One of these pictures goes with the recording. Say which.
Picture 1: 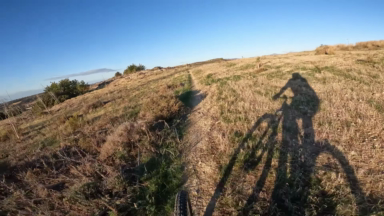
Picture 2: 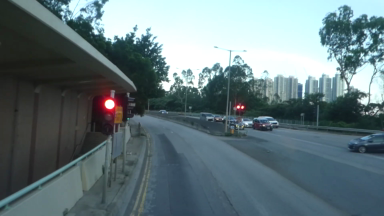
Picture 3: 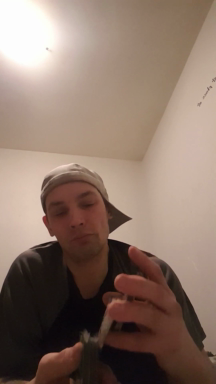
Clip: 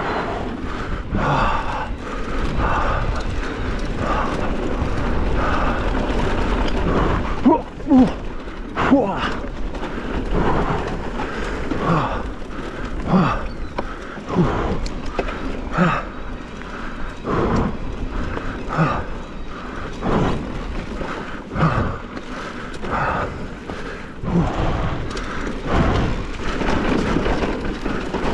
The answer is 1